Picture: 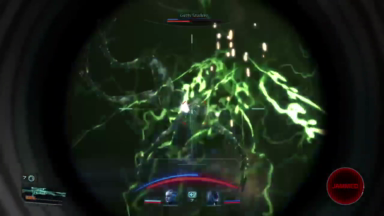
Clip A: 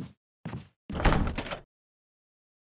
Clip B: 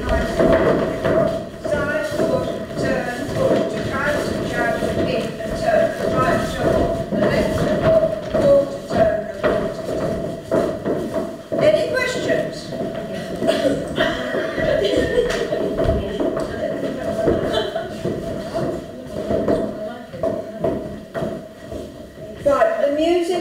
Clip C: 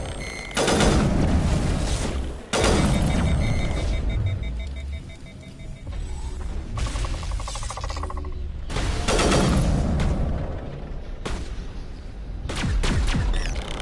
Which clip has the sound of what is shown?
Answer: C